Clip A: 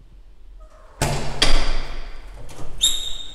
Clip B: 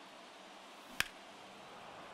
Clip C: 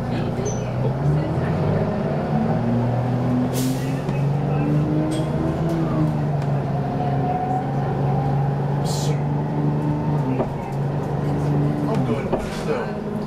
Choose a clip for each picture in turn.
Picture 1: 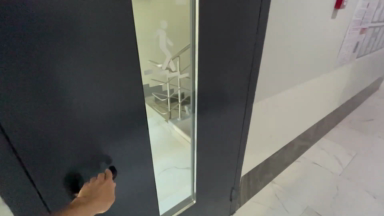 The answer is A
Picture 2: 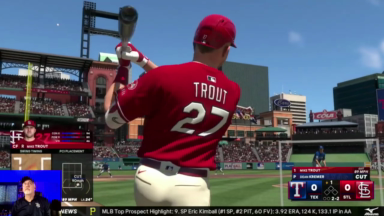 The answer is B